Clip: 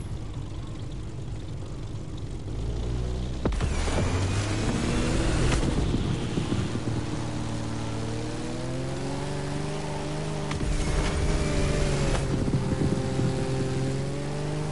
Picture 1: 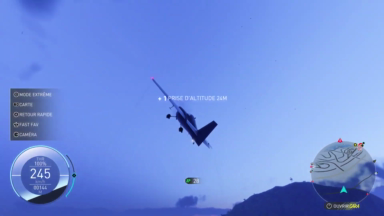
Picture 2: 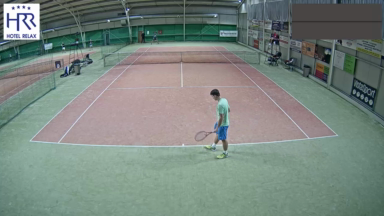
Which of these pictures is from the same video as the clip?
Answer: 1